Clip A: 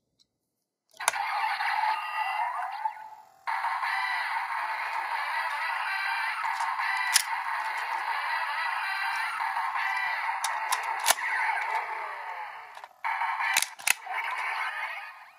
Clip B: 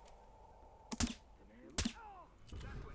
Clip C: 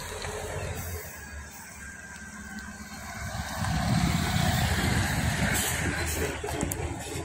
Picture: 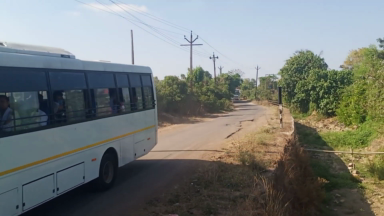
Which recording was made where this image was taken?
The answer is C